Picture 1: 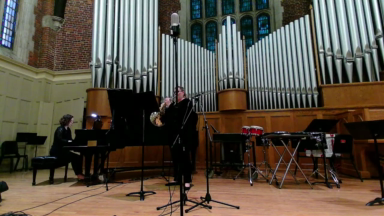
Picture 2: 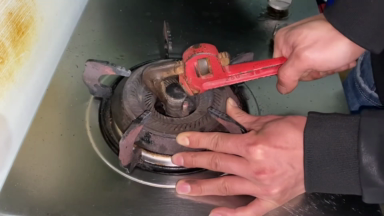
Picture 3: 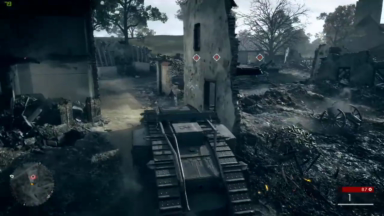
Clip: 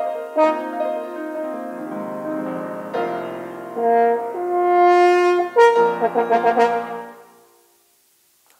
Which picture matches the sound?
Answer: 1